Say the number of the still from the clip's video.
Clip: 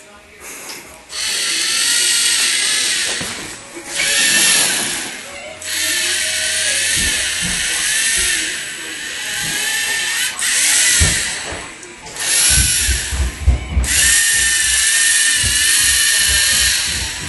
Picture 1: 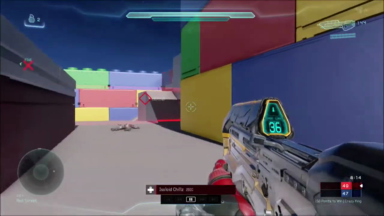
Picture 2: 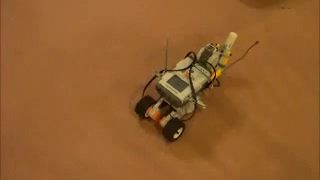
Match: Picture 2